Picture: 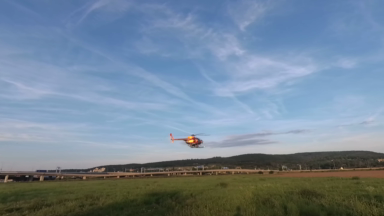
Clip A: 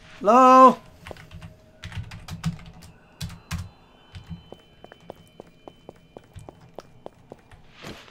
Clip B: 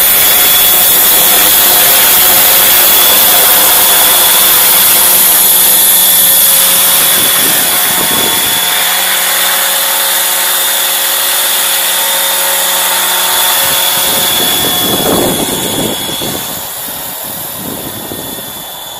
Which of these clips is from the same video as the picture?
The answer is B